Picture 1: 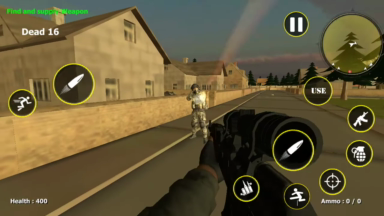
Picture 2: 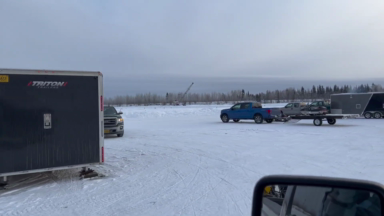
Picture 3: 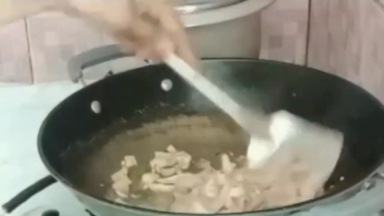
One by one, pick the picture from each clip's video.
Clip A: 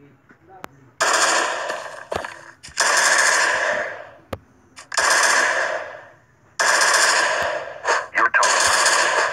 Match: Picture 1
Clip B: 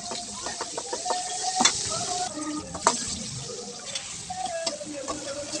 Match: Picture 3